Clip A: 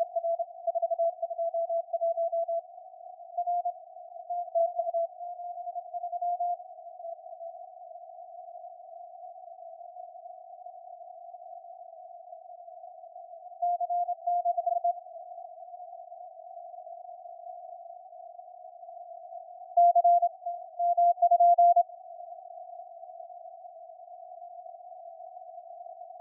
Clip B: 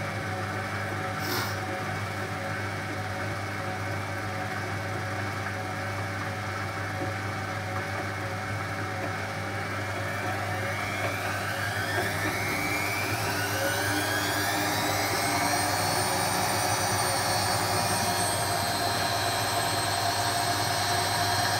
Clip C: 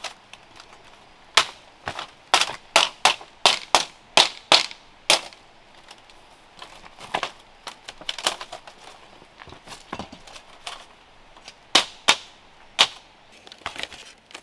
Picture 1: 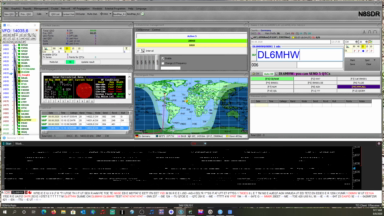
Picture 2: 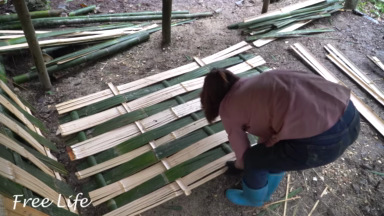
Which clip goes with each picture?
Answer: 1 A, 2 C